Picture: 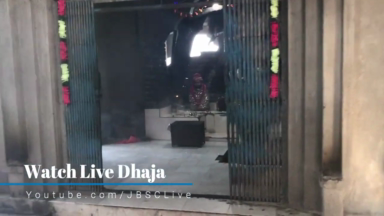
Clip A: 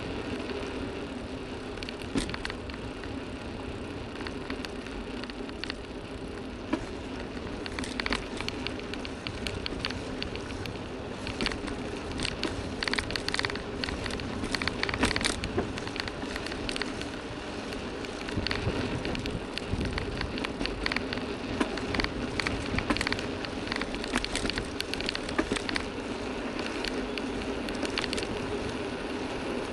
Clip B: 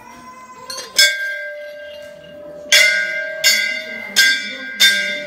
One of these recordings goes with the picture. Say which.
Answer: B